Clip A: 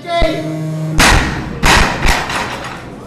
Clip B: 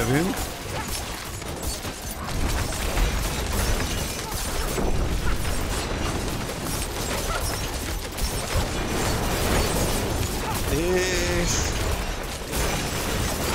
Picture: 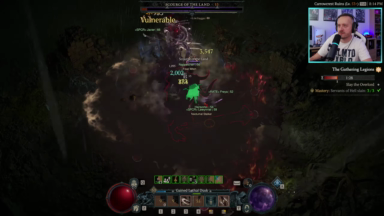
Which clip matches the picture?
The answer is B